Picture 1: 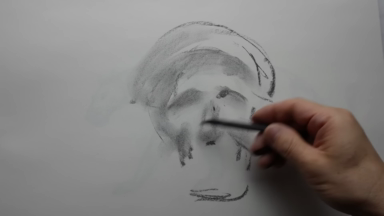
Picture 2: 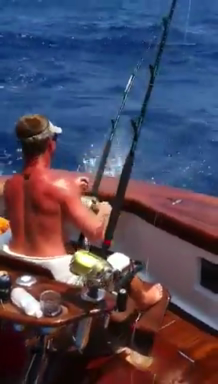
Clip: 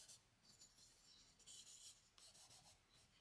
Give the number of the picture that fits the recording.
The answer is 1